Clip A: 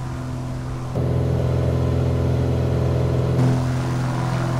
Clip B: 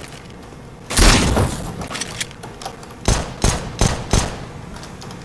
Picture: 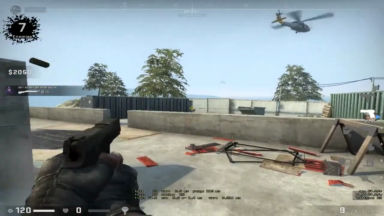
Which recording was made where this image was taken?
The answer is B